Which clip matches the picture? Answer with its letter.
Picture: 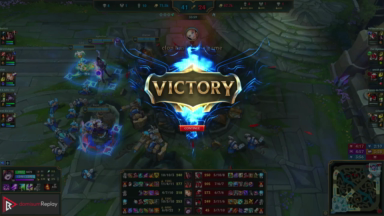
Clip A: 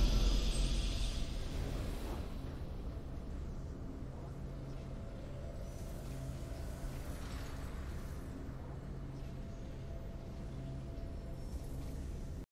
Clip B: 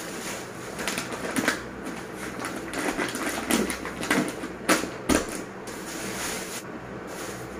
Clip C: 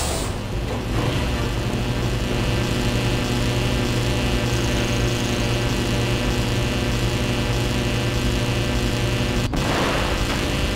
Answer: A